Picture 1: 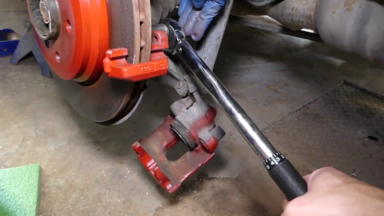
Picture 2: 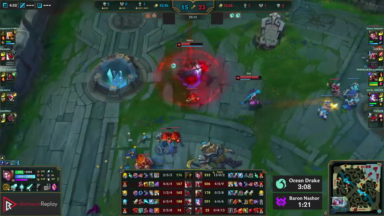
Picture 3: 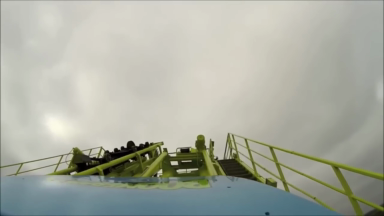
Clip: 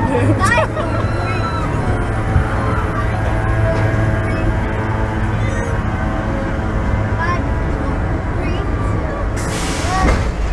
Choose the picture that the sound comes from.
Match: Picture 3